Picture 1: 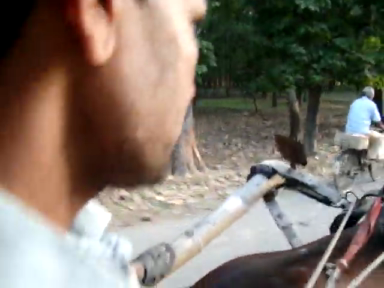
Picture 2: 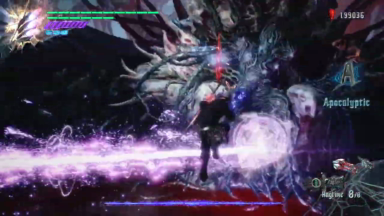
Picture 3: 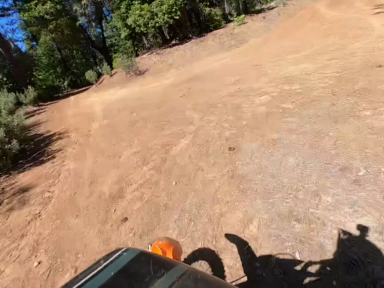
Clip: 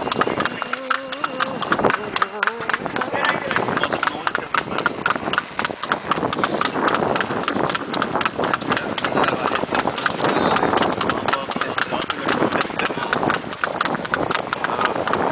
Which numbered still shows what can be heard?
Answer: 1